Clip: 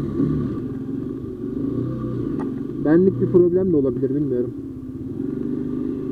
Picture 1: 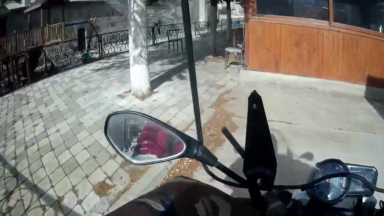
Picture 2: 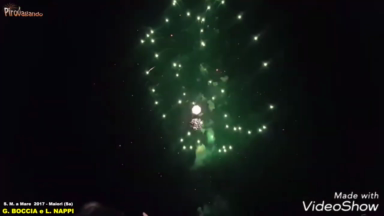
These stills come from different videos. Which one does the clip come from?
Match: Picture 1